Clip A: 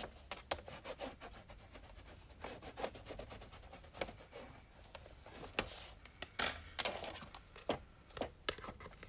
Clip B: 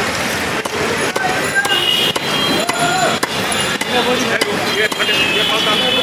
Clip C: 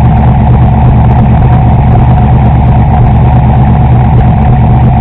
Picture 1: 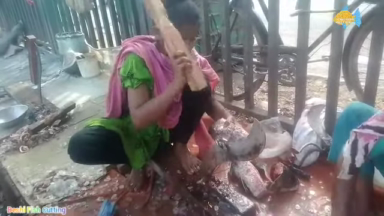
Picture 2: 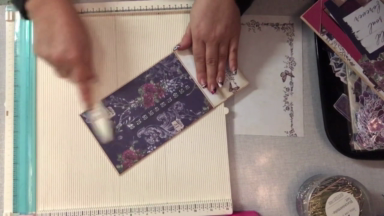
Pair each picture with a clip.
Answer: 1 B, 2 A